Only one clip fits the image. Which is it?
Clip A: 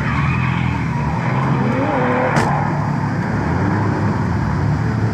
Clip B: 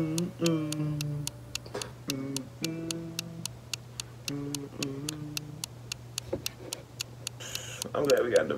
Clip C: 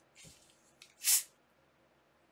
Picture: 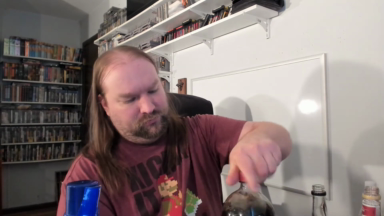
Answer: C